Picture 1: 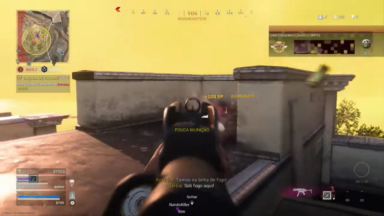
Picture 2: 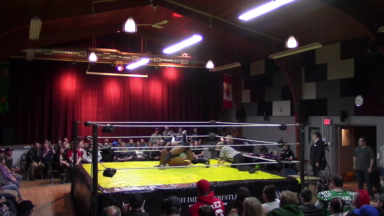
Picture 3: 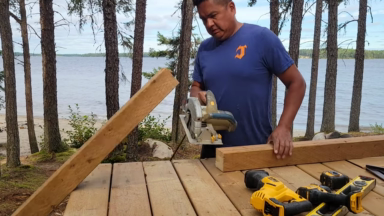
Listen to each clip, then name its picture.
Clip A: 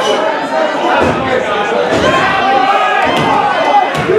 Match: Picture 2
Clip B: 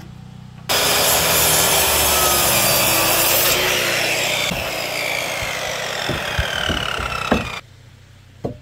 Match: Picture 3